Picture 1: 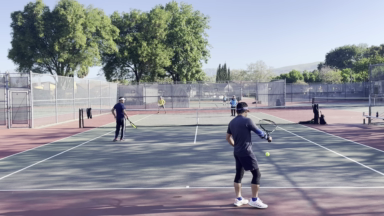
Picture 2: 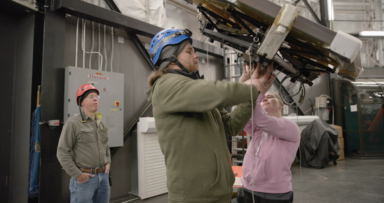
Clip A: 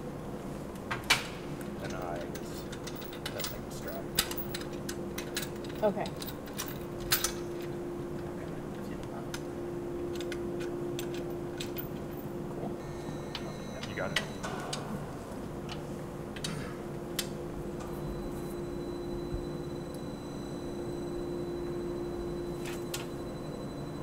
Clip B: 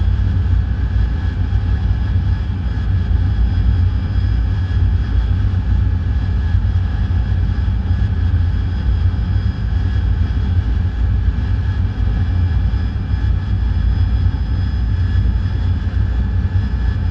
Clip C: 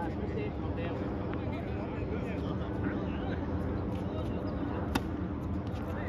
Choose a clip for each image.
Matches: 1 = C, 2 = A